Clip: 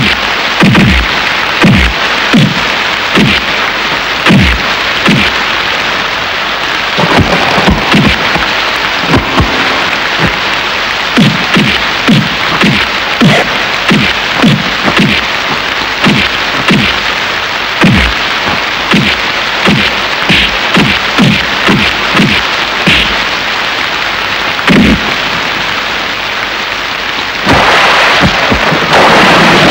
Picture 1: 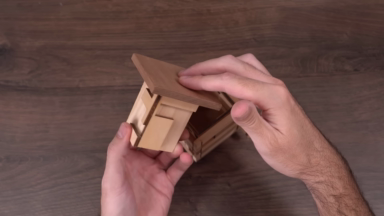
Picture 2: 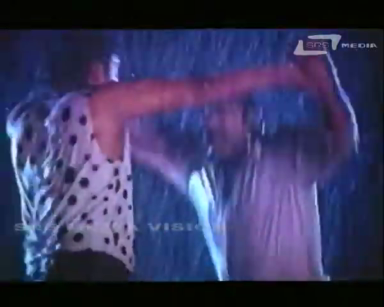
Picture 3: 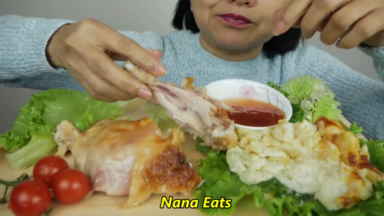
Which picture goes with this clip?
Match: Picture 2